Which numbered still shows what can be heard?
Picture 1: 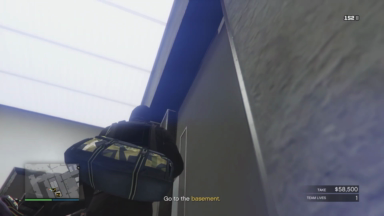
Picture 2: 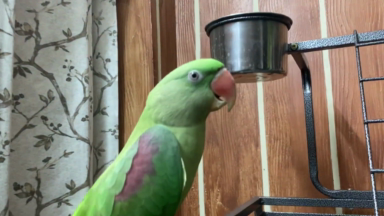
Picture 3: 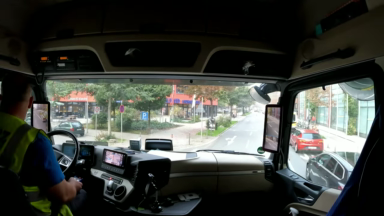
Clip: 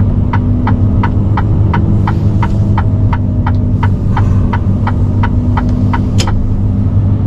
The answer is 3